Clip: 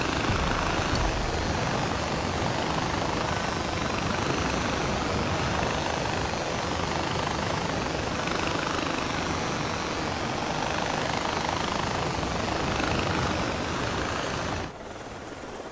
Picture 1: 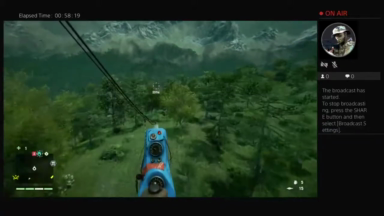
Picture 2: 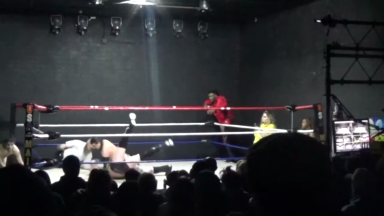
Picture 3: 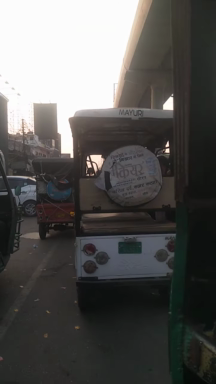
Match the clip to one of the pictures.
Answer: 1